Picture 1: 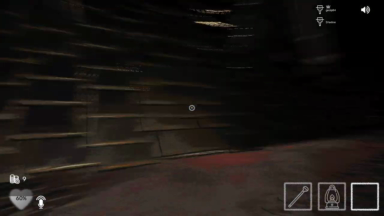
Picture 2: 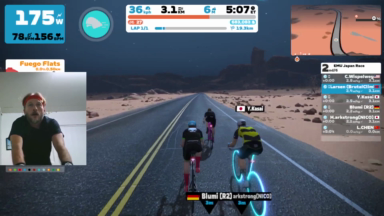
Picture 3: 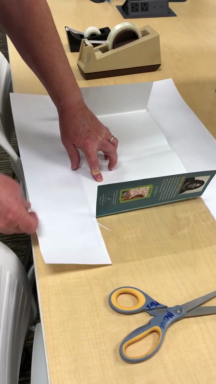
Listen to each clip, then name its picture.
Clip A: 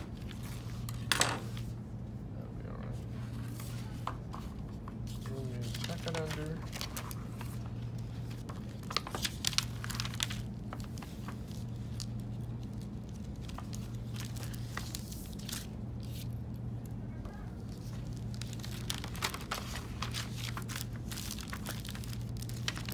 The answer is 3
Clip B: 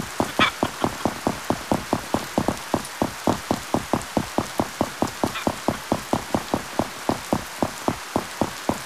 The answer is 1